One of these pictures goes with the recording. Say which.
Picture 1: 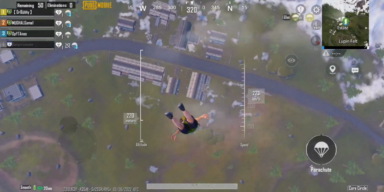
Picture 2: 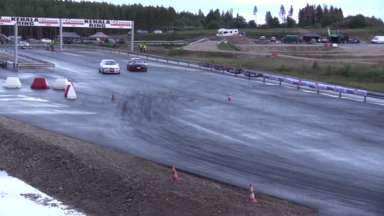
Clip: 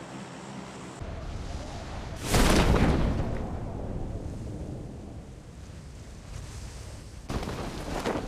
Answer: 1